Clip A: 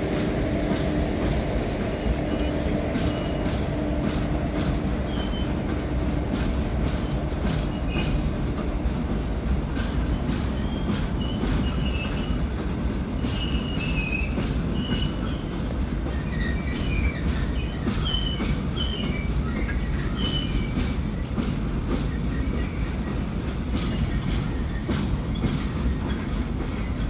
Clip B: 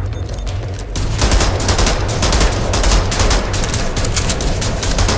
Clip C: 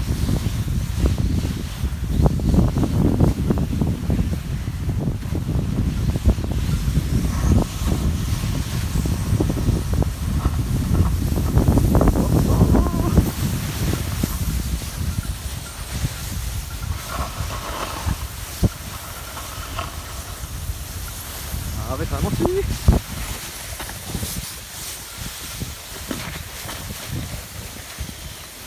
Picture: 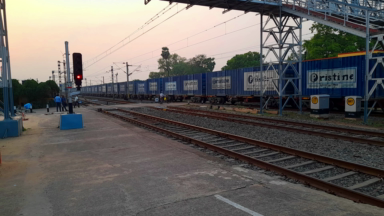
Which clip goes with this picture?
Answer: A